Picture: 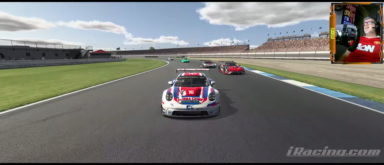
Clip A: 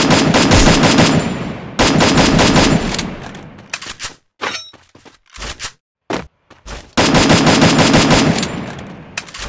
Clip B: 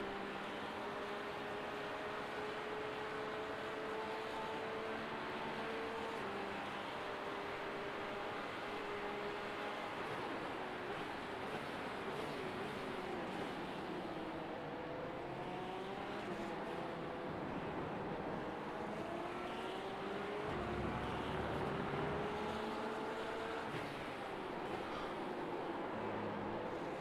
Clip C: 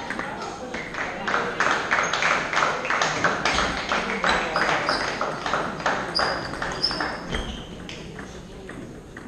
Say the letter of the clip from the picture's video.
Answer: B